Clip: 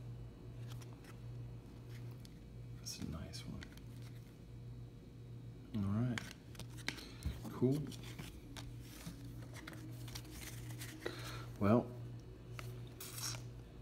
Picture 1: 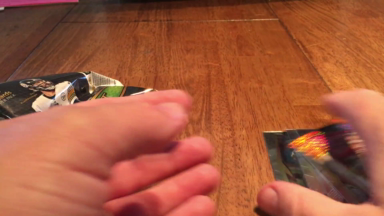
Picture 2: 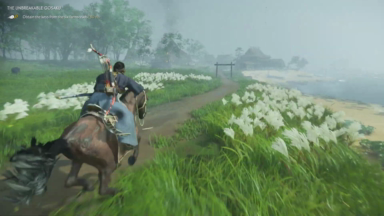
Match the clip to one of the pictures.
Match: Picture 1